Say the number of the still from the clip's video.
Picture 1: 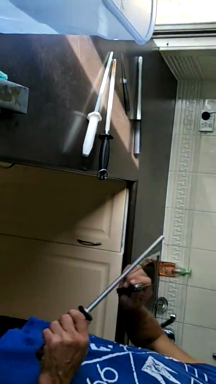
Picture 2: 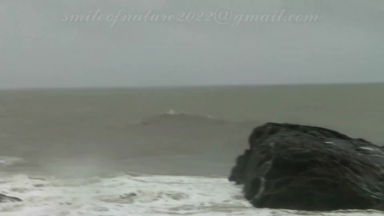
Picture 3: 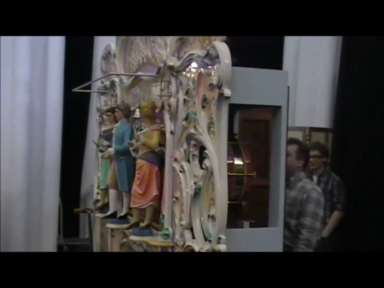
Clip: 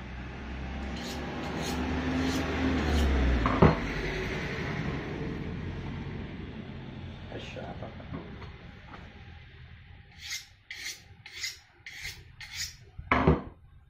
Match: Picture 1